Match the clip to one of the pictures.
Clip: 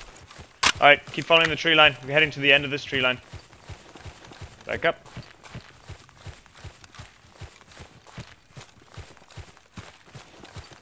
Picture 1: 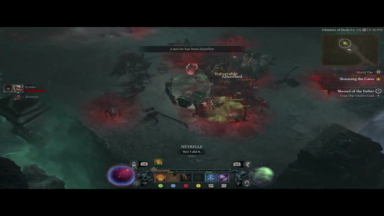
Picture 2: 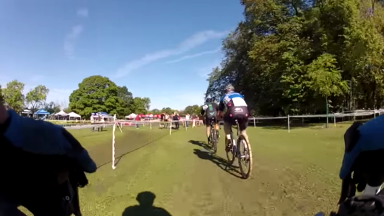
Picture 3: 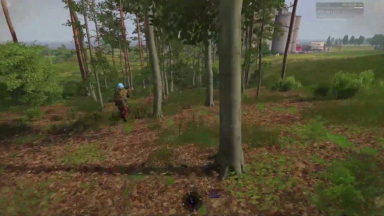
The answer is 3